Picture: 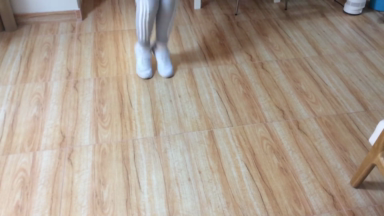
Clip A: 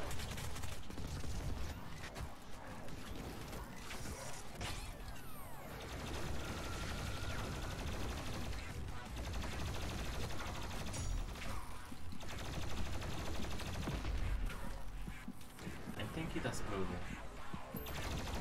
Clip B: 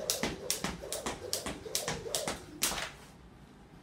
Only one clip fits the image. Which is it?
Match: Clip B